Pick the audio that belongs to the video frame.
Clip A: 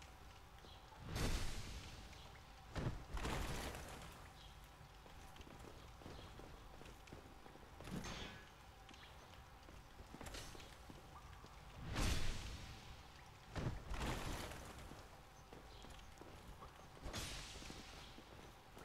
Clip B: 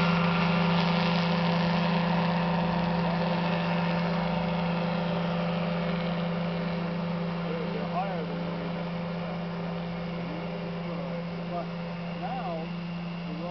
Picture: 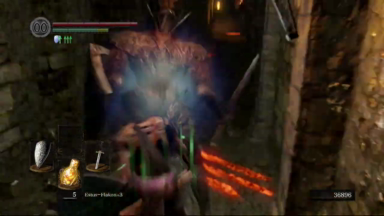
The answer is A